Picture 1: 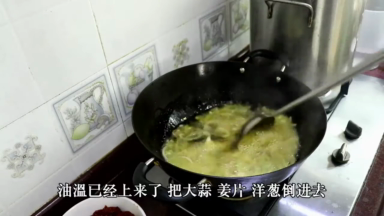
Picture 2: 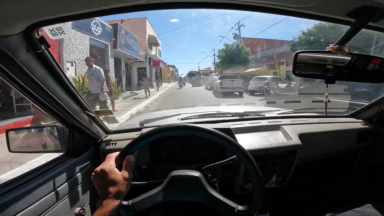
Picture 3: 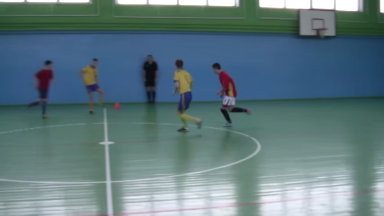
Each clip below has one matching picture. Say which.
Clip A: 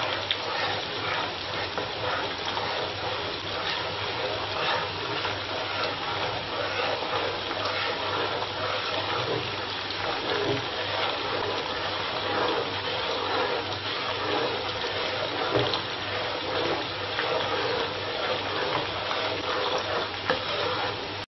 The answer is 1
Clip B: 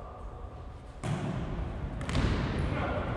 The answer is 3